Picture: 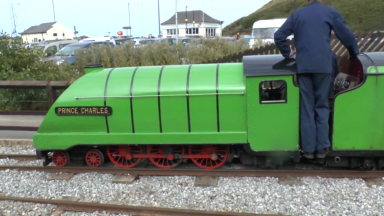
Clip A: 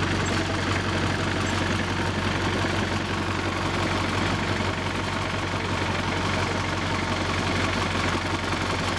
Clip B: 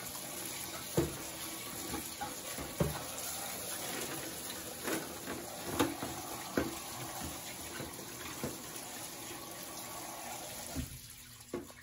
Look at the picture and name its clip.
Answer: A